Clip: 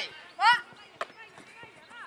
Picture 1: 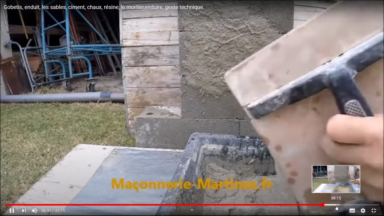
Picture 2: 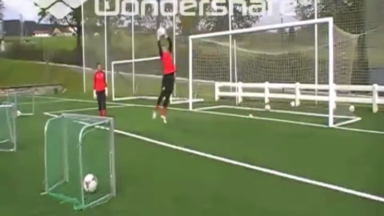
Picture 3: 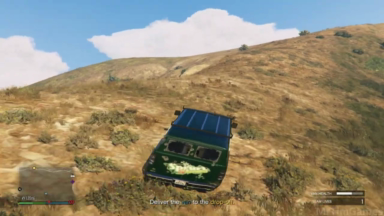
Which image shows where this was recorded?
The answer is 2